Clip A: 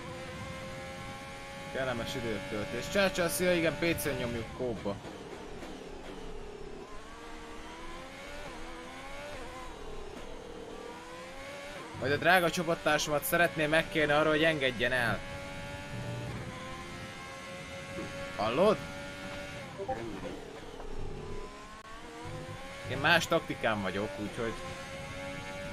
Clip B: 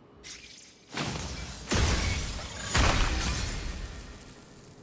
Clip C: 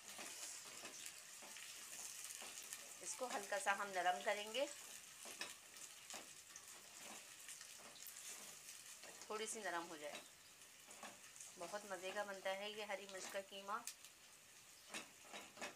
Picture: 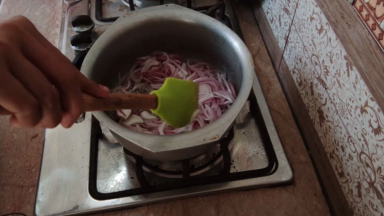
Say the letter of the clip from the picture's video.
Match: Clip C